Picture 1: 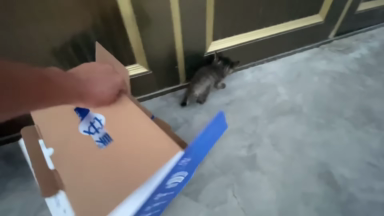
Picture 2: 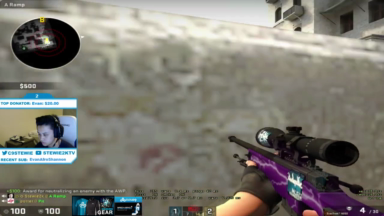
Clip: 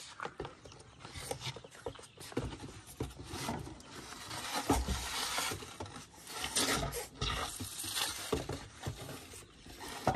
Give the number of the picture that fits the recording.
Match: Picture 1